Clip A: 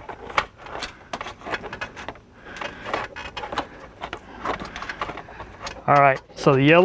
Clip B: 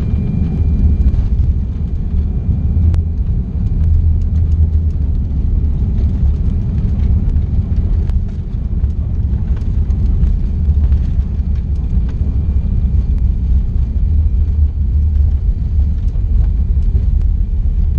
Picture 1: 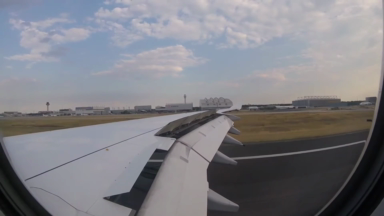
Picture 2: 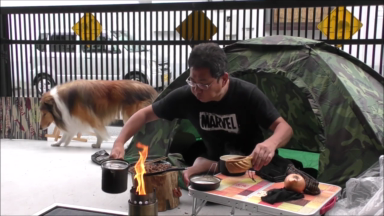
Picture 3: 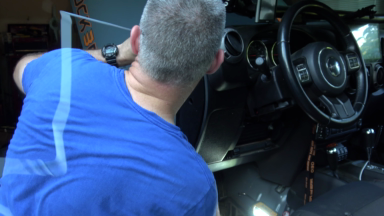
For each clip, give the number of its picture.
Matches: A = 3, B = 1